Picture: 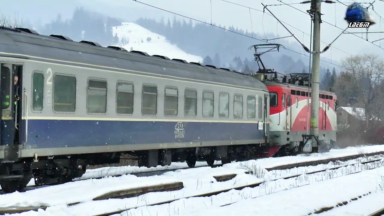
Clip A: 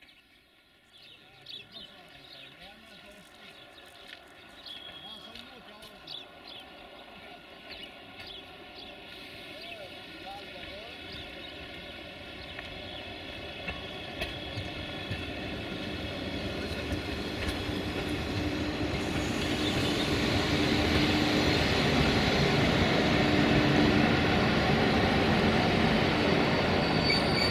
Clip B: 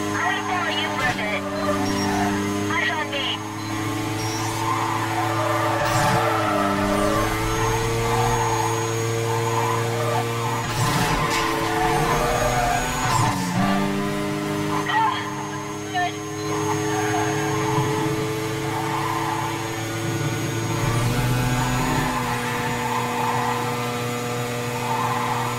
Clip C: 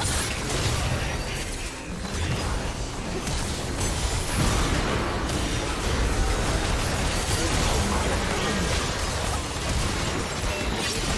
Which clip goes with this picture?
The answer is A